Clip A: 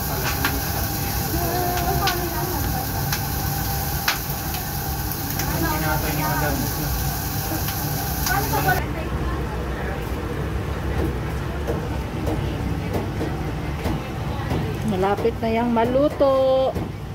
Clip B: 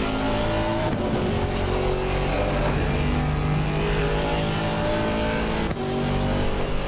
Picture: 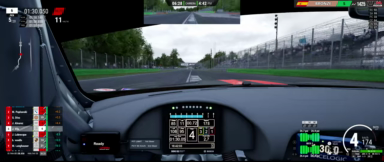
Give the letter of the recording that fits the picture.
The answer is B